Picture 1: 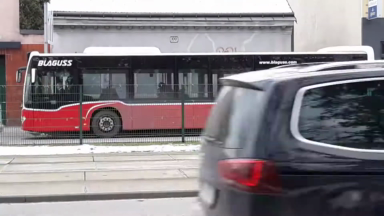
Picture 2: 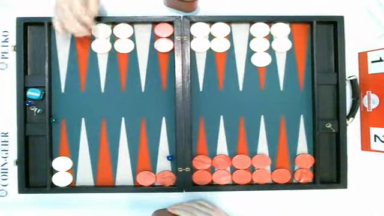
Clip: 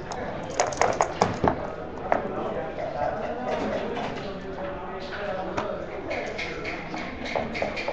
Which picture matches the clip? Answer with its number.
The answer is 2